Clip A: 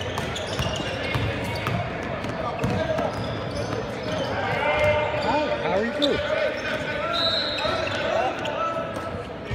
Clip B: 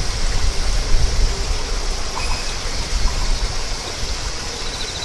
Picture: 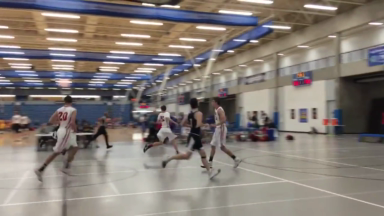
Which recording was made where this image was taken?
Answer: A